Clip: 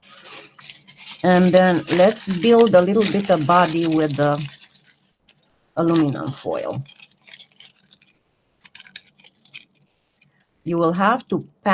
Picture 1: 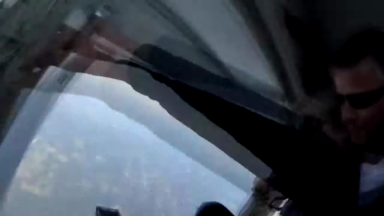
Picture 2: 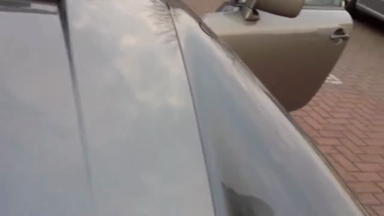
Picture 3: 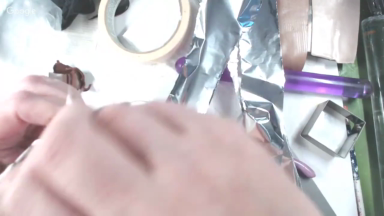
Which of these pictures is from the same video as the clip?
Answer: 3